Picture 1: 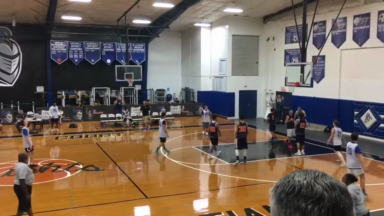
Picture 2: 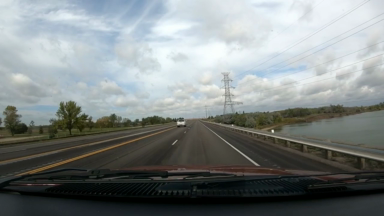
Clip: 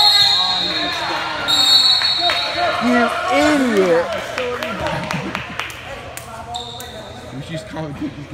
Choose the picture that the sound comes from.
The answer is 1